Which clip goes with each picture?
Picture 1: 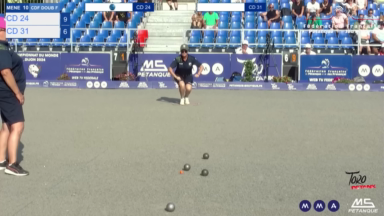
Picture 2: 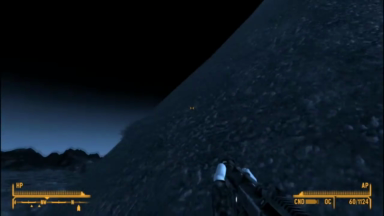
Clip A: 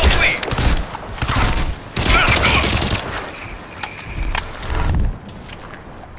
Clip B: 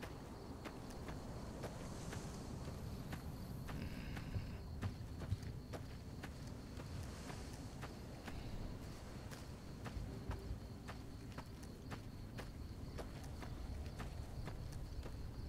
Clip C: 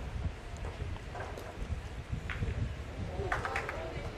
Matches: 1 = C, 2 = B